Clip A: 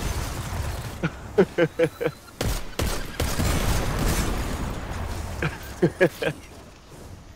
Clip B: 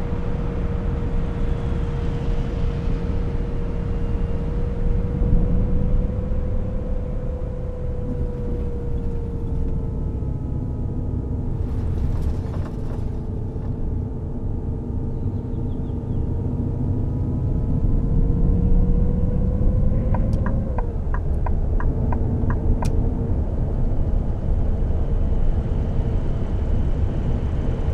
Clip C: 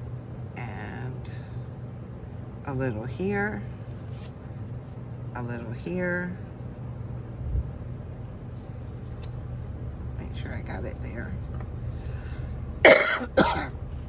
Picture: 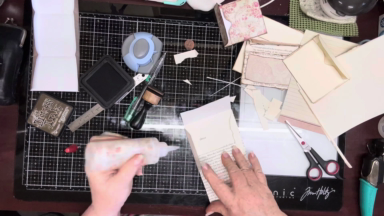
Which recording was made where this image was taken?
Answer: C